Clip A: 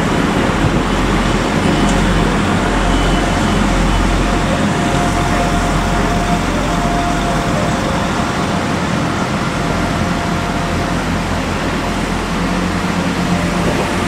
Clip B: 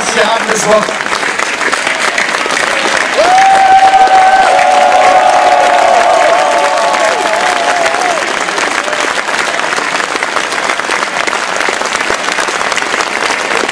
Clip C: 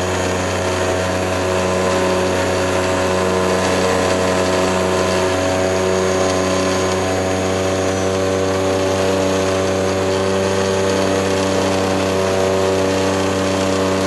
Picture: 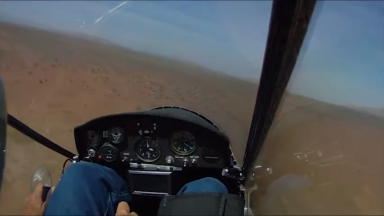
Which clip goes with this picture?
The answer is C